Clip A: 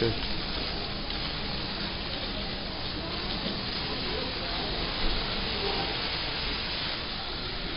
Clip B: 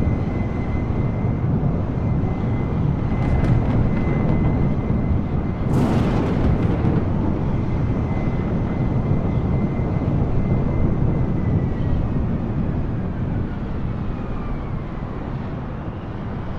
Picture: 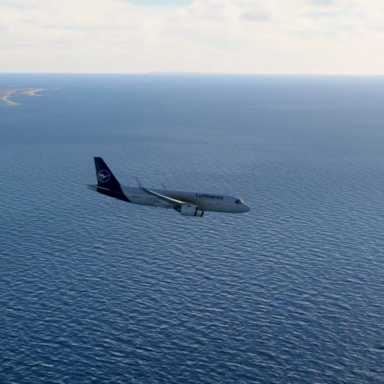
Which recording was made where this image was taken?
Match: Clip B